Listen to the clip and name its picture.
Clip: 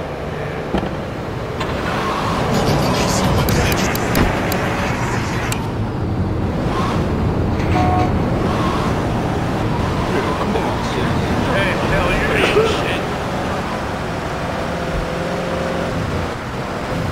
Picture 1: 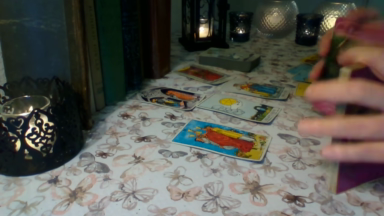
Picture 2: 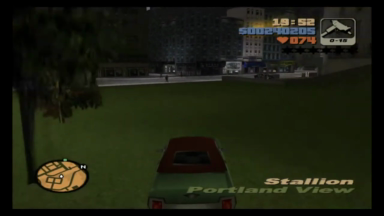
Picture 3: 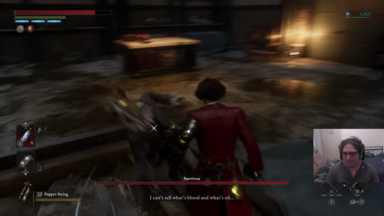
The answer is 2